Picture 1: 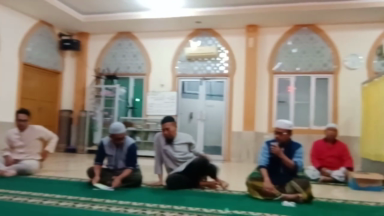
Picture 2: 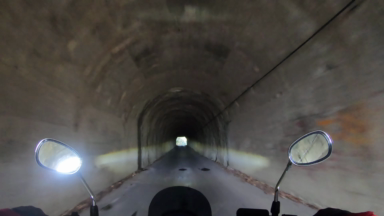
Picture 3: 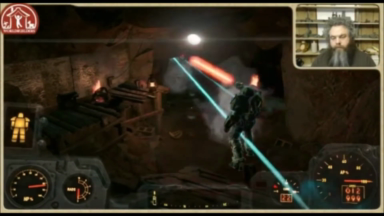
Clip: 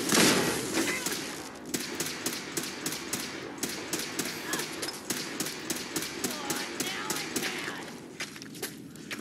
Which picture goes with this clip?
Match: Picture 3